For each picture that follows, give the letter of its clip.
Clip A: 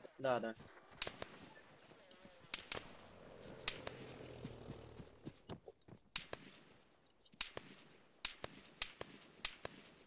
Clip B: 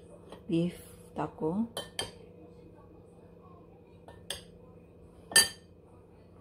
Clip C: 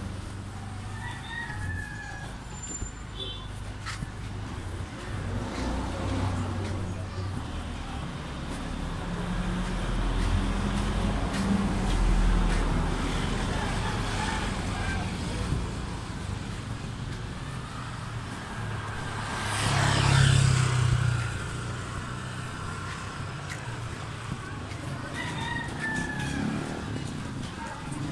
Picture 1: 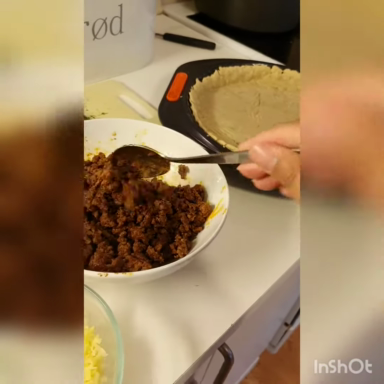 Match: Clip B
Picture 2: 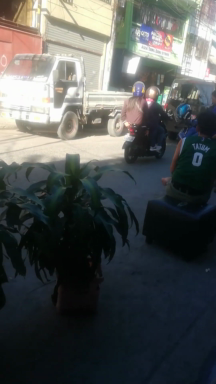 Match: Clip C